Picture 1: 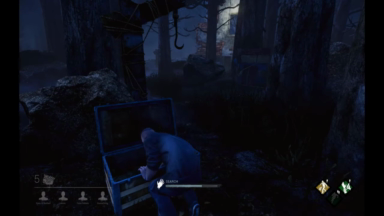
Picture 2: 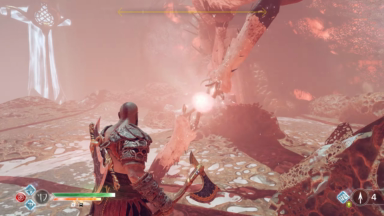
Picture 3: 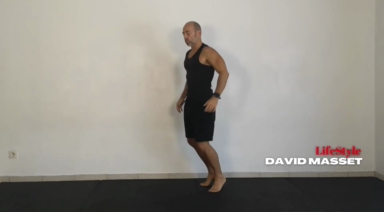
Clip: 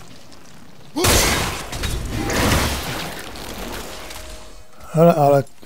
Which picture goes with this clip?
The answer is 2